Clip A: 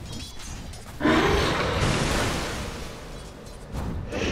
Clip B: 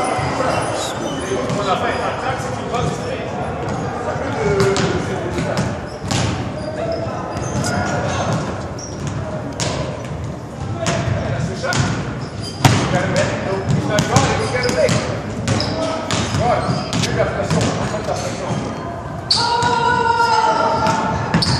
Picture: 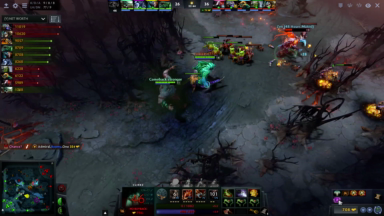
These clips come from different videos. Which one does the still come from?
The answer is A